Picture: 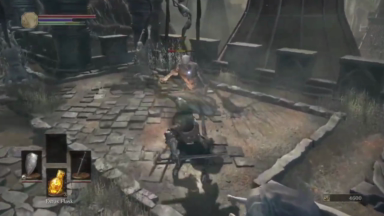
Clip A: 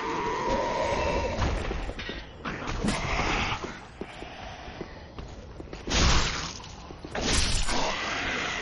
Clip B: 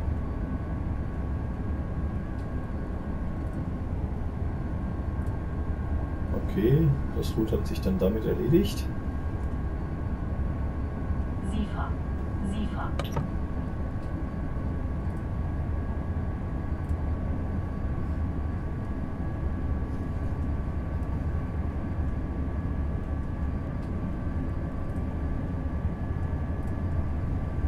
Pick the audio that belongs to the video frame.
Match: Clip A